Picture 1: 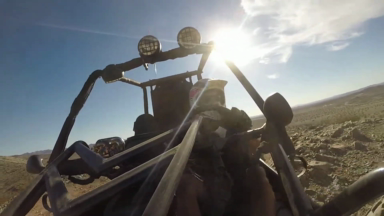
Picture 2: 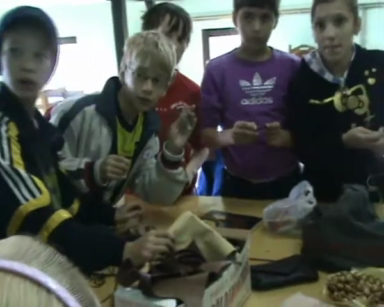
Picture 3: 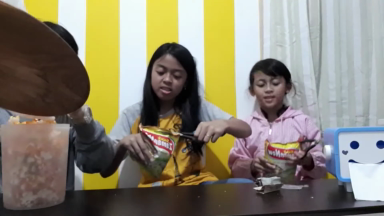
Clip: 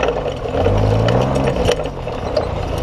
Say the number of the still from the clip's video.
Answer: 1